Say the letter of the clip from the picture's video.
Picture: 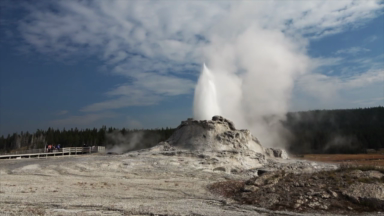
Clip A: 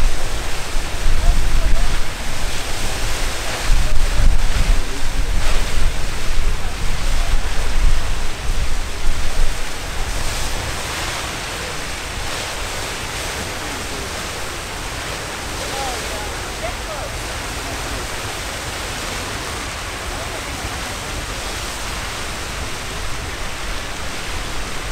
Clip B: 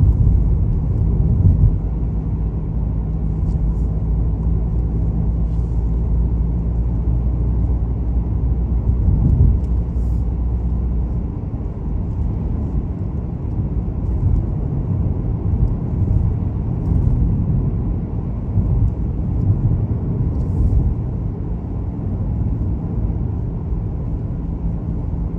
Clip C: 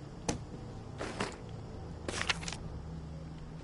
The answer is A